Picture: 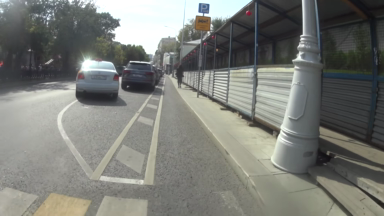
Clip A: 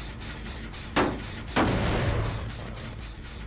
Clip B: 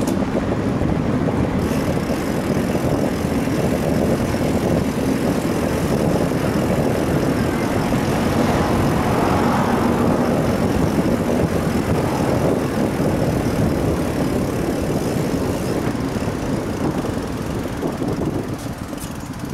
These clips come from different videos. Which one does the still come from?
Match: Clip B